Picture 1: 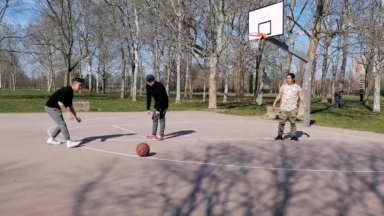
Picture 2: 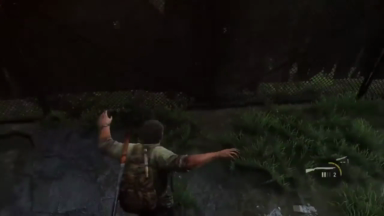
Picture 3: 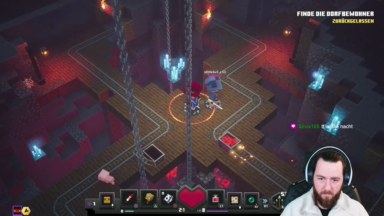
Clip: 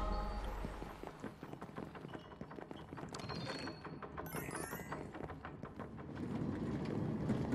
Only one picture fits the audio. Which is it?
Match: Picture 3